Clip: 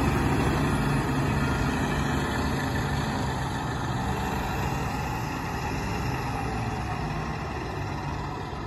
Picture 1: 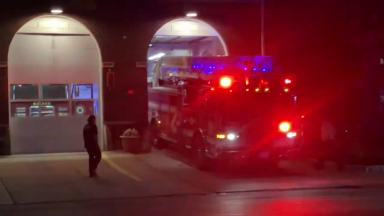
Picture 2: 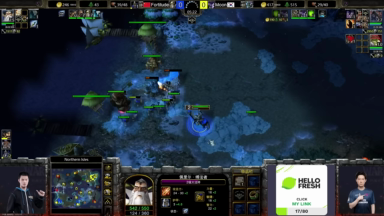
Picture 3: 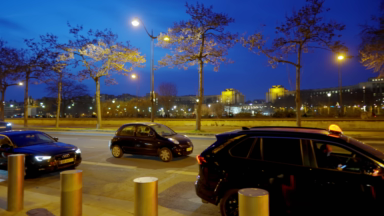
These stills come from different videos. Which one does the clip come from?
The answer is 1